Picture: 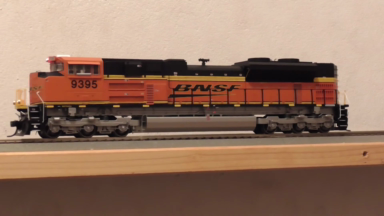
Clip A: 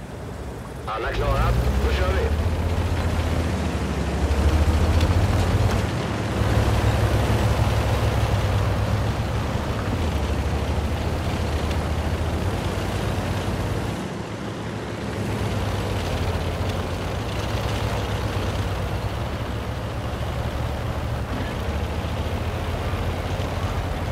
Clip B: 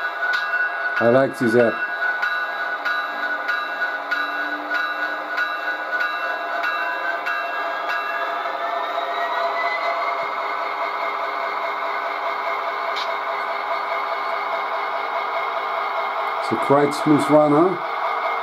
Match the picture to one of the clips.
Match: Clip B